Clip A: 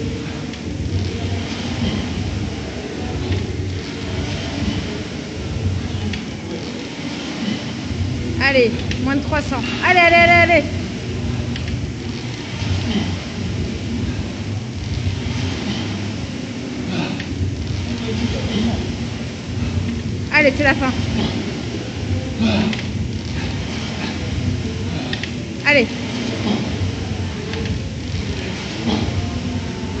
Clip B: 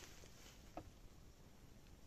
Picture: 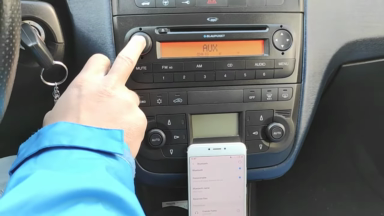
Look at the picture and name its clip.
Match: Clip B